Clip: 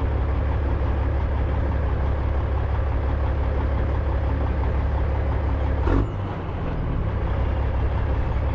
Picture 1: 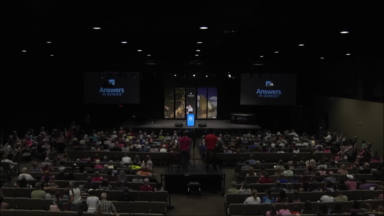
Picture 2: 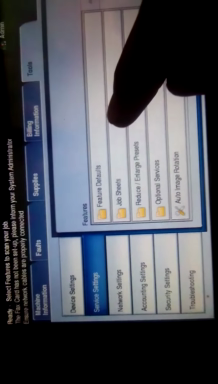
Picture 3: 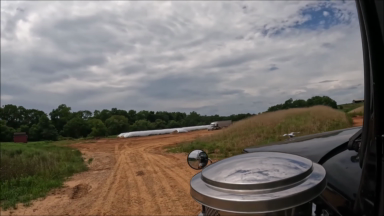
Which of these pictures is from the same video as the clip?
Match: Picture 3